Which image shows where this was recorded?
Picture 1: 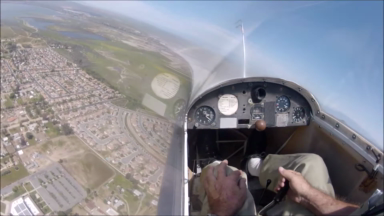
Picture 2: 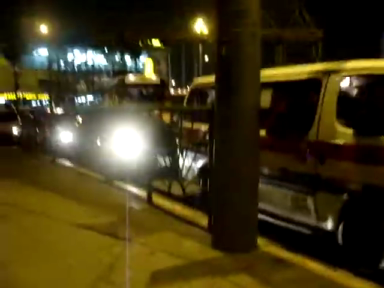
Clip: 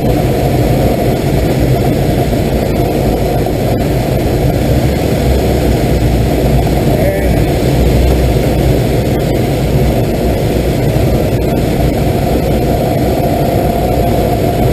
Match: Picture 1